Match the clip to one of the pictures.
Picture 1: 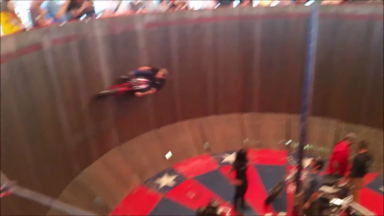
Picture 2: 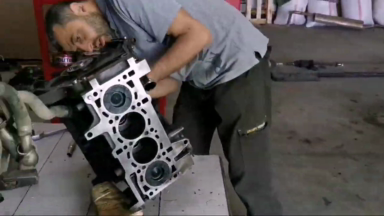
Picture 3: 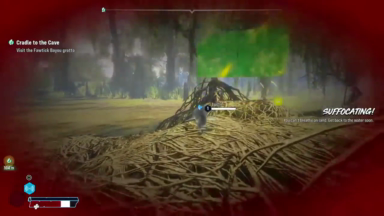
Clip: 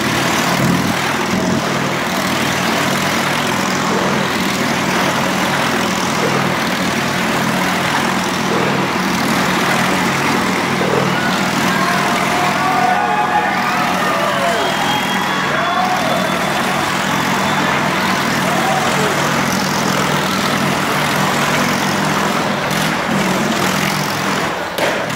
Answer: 1